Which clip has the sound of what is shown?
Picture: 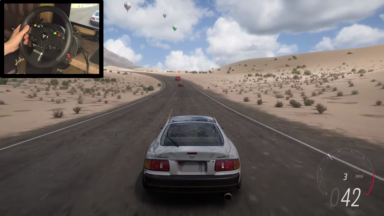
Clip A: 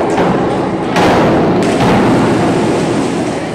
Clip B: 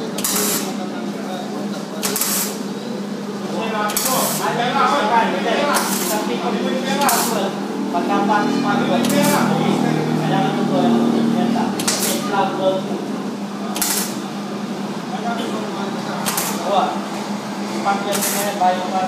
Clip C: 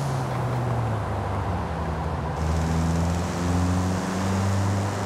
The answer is C